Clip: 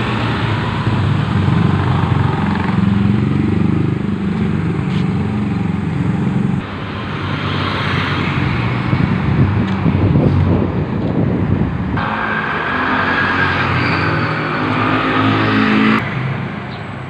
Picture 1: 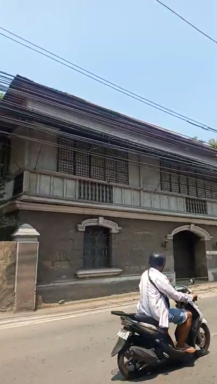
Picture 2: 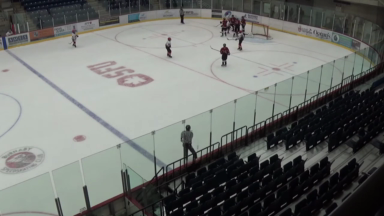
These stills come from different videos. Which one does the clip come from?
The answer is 1